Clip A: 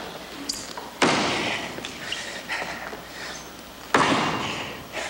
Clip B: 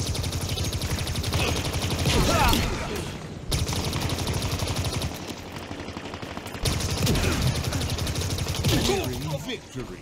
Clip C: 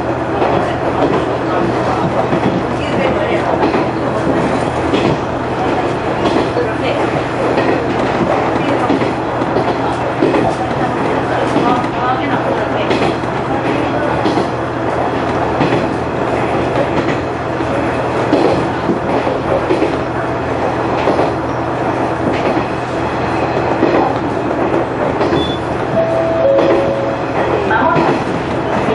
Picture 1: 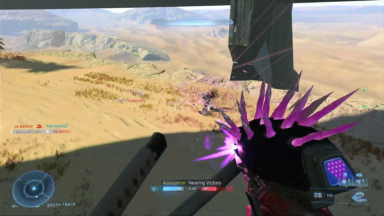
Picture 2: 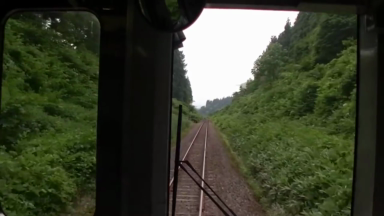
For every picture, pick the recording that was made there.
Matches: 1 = B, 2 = C